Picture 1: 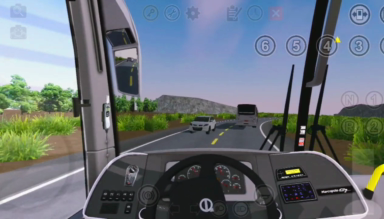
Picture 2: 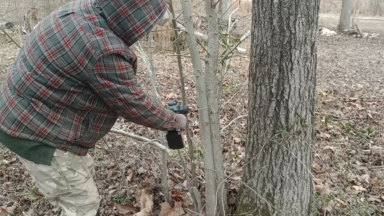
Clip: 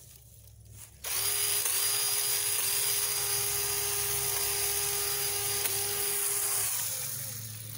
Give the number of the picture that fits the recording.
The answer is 2